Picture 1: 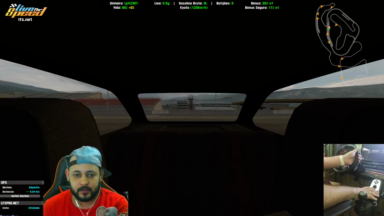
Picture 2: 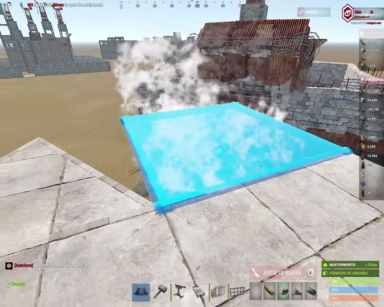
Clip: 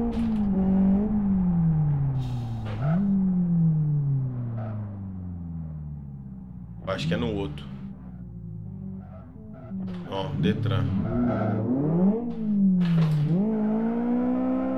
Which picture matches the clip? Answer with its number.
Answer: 1